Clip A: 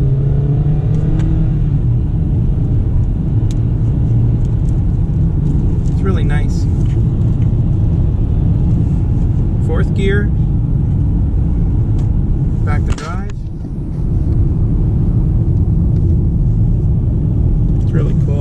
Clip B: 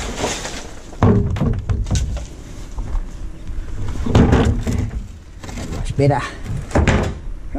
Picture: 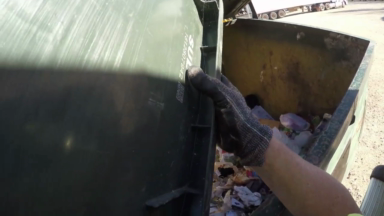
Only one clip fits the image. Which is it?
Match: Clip B